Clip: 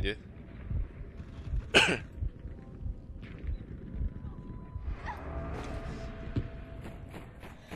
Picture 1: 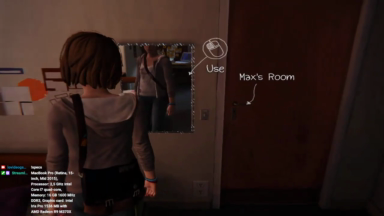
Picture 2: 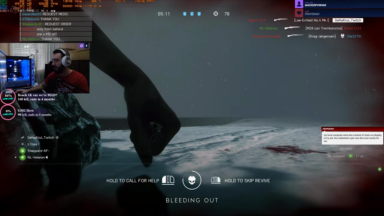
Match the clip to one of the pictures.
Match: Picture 2